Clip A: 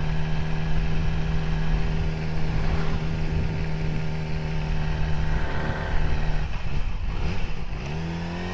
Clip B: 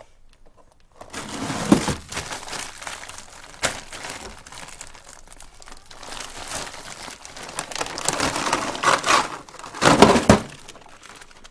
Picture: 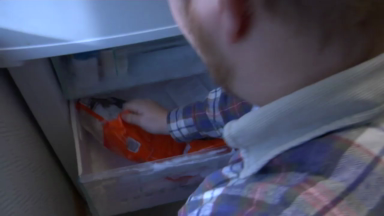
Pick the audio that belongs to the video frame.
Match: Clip B